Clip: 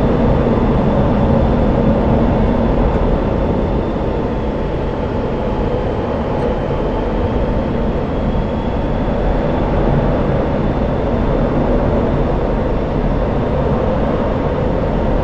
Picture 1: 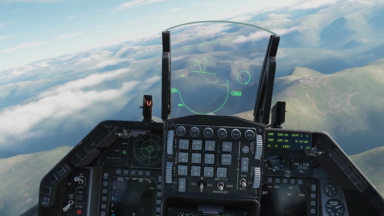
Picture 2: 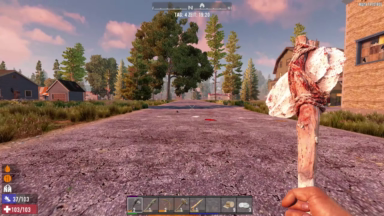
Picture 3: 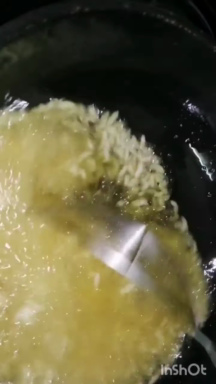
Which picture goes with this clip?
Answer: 1